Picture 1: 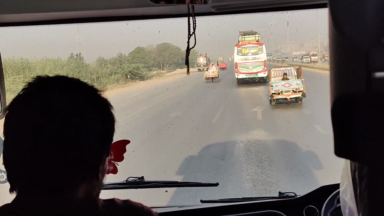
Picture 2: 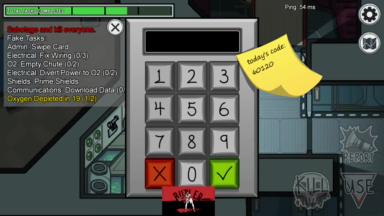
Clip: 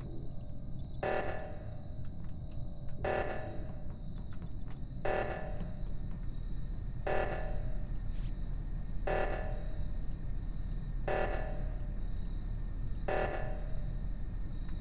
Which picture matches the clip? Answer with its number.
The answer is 2